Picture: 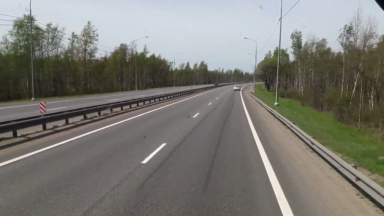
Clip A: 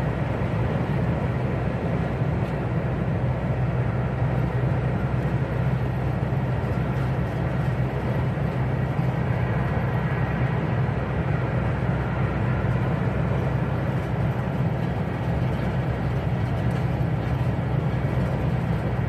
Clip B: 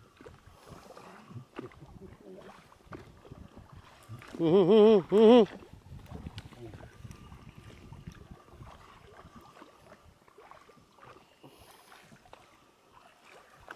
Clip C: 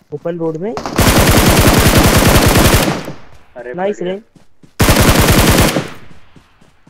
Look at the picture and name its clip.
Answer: A